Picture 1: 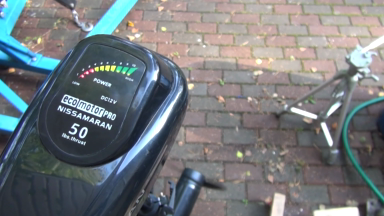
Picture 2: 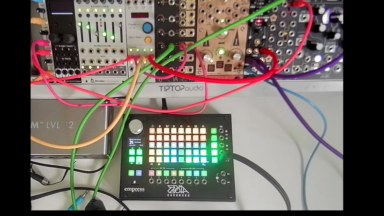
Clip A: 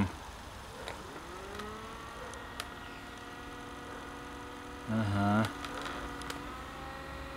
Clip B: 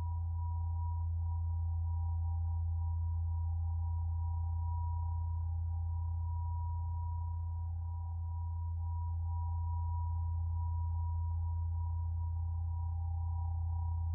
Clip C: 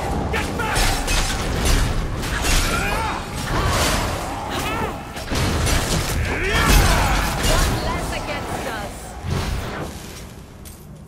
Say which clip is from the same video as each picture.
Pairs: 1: A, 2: B